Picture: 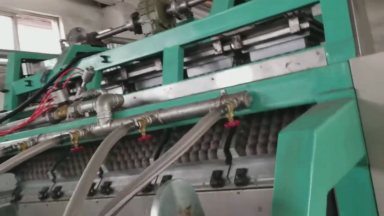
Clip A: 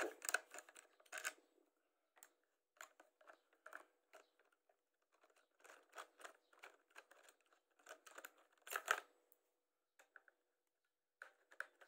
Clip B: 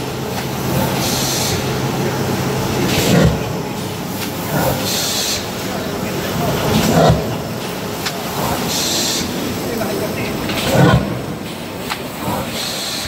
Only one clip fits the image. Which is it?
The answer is B